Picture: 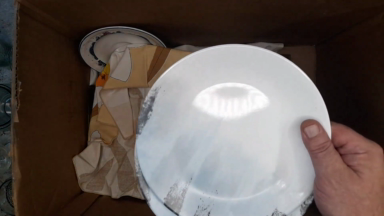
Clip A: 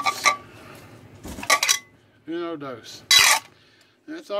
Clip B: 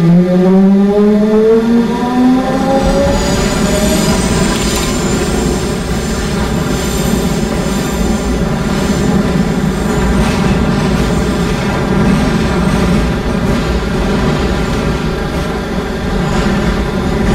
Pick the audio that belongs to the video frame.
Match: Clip A